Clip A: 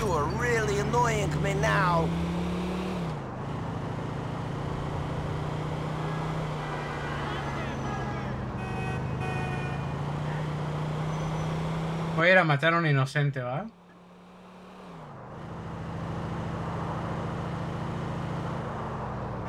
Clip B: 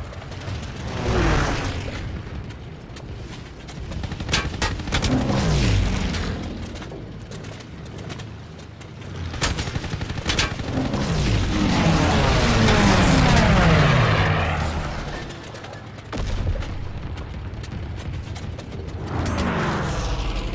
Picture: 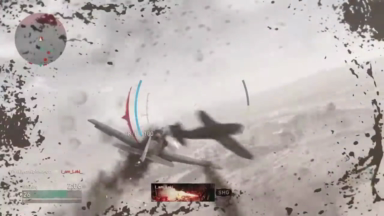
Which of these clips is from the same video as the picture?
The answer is B